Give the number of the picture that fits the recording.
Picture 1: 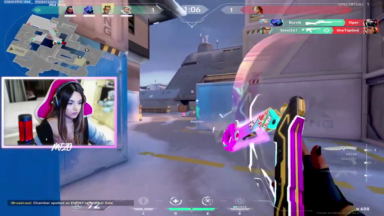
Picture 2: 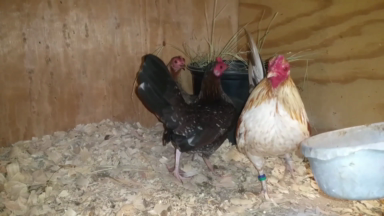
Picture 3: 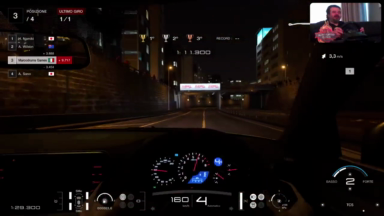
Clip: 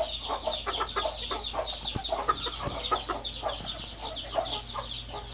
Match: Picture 2